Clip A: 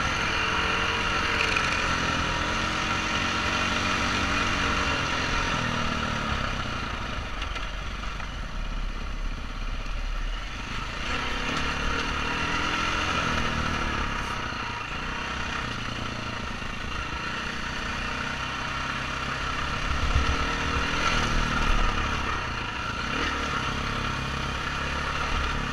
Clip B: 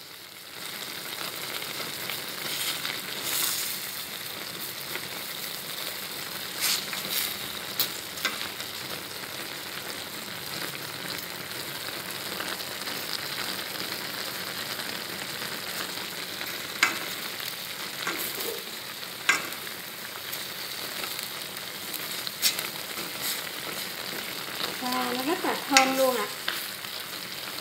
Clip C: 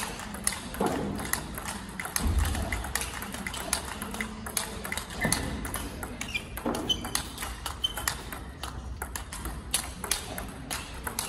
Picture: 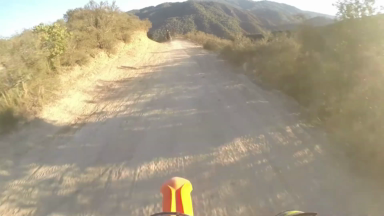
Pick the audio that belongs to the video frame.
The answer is A